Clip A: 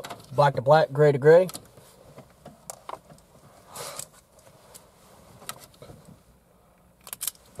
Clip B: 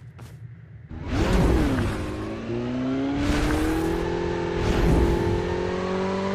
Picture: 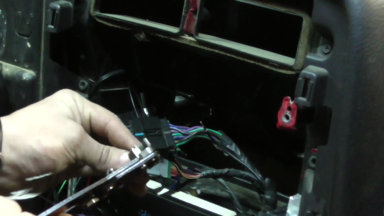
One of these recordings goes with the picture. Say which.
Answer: A